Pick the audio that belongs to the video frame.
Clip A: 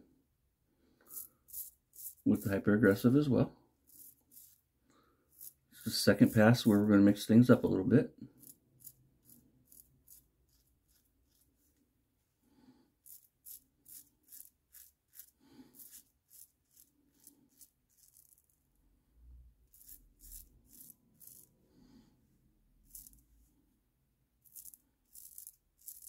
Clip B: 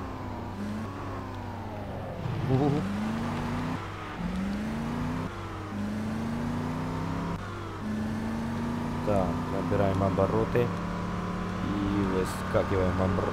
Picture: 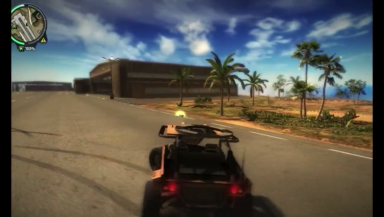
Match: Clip B